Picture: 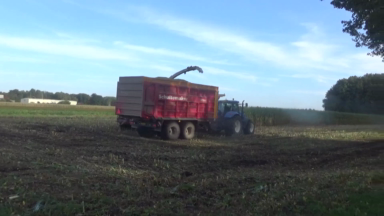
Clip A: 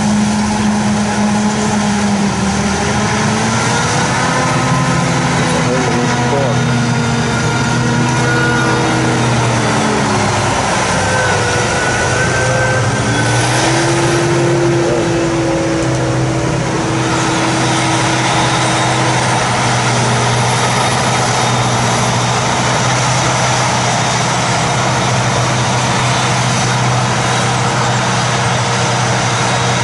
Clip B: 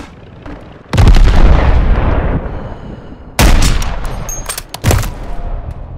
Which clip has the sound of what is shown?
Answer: A